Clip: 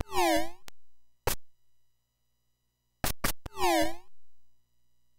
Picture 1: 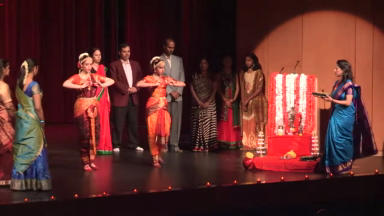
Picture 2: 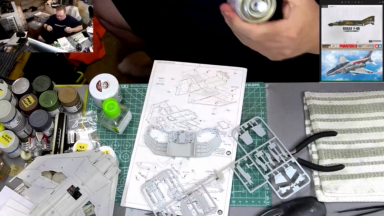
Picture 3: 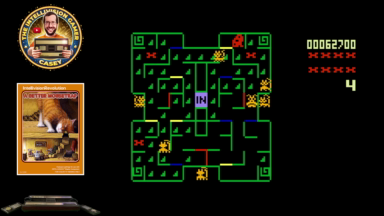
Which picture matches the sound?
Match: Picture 3